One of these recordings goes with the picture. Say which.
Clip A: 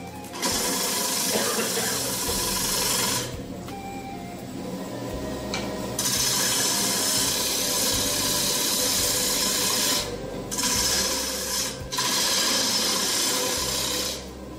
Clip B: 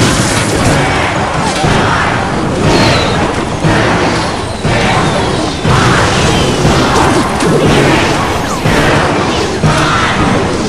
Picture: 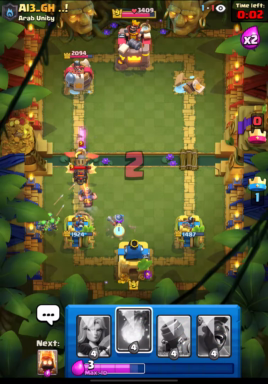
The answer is B